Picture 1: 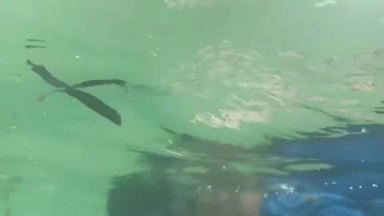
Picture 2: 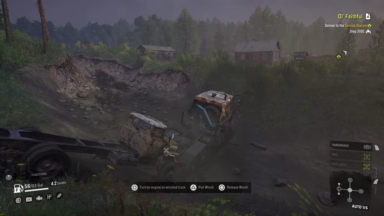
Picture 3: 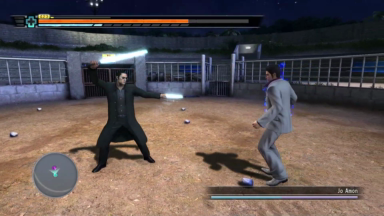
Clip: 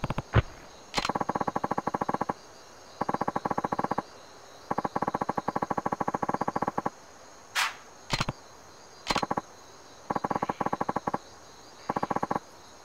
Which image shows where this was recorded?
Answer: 3